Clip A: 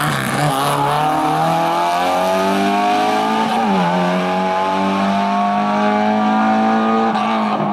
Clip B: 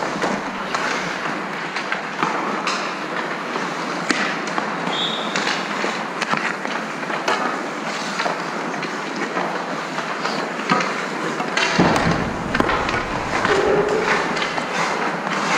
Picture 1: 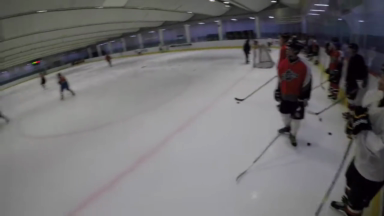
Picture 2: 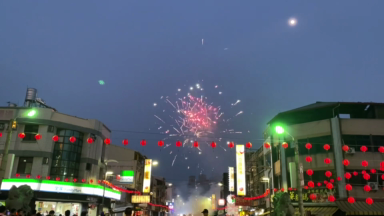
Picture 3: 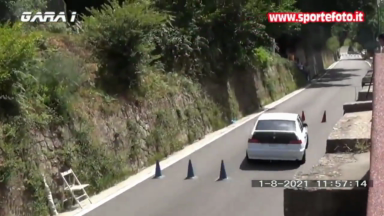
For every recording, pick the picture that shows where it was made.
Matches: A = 3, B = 1